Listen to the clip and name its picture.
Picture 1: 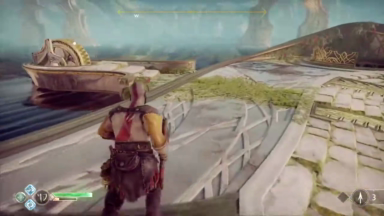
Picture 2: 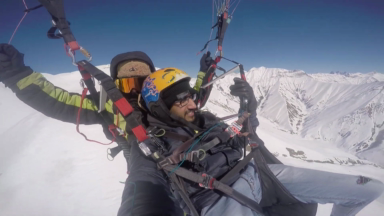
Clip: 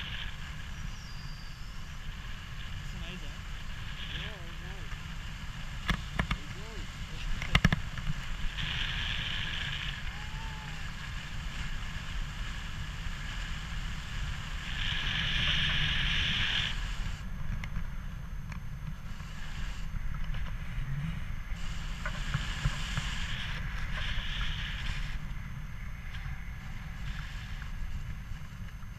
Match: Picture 2